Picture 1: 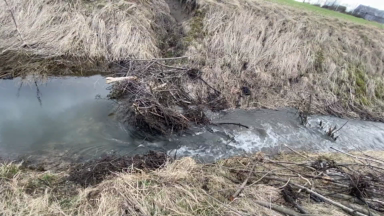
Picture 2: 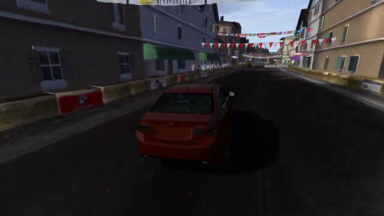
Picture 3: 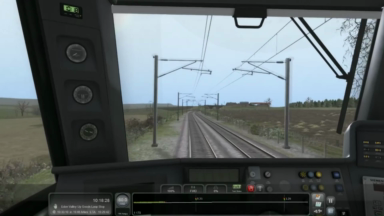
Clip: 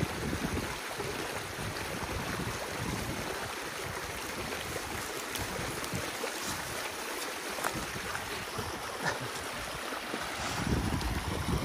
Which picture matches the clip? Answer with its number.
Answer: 1